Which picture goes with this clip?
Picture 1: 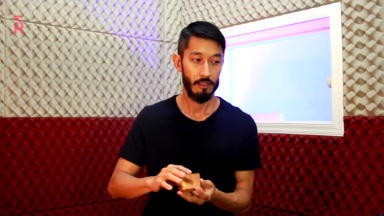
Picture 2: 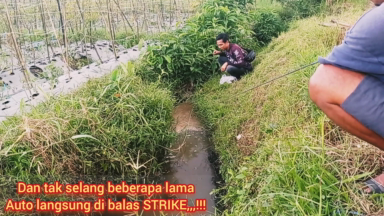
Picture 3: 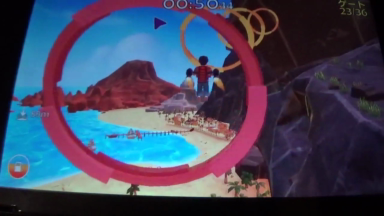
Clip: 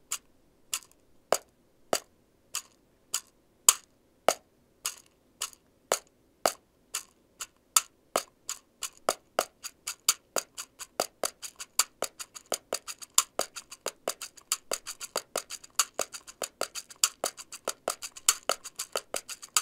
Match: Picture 1